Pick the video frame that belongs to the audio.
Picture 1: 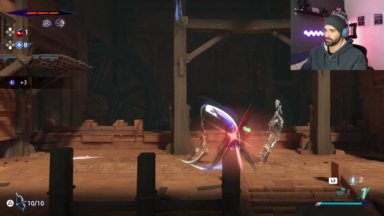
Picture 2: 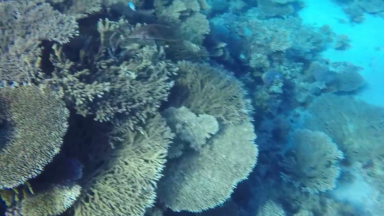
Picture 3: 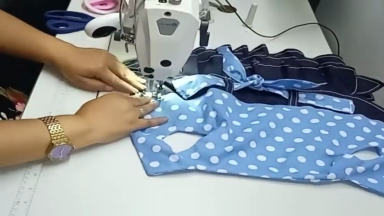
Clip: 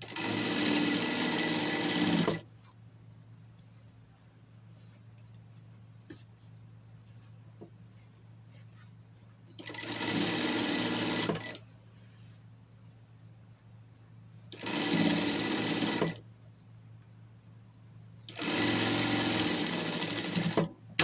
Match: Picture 3